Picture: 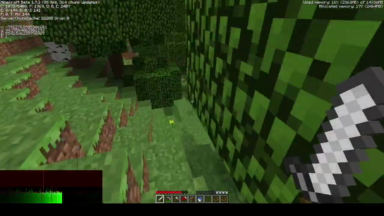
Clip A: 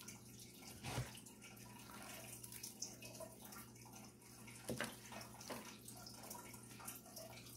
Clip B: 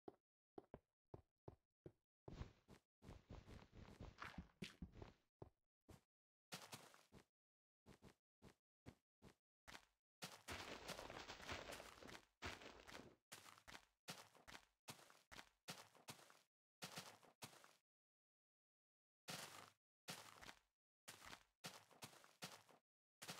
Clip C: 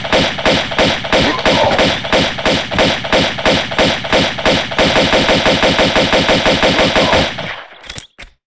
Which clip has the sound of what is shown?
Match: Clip B